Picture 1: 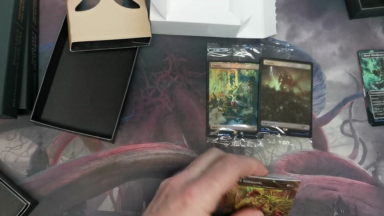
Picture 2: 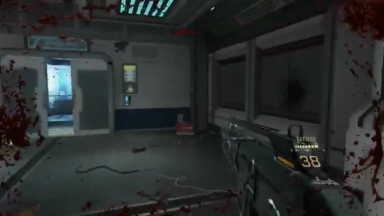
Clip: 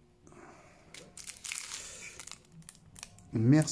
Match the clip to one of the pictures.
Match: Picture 1